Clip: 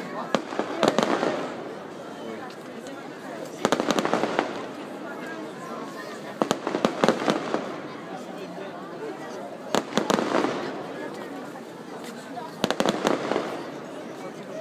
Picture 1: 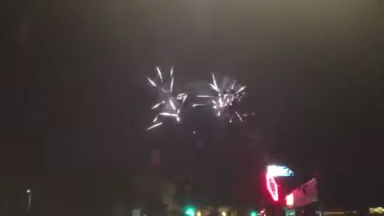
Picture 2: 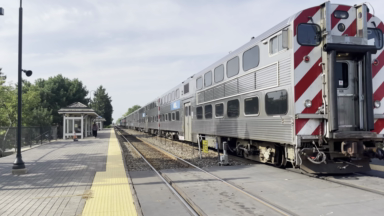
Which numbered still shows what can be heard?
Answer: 1